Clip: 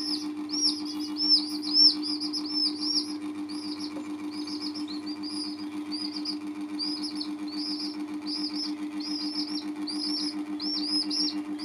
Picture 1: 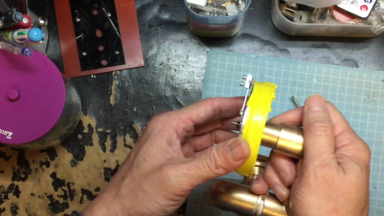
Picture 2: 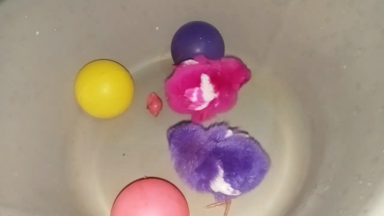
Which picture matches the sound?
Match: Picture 2